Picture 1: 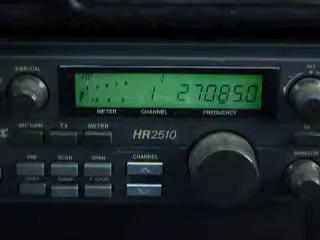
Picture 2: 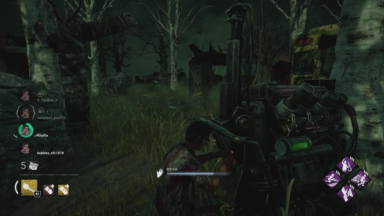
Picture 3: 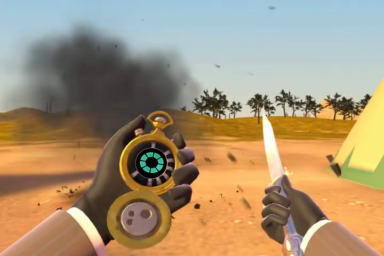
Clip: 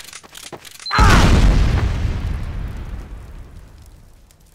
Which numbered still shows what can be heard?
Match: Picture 3